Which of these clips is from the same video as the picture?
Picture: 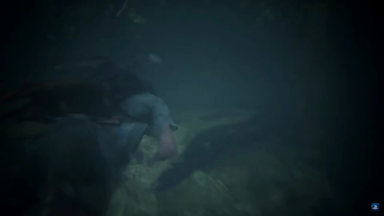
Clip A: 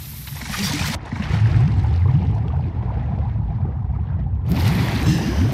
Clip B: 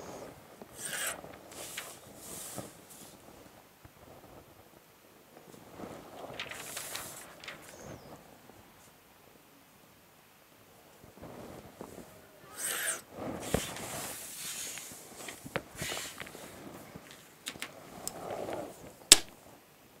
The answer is A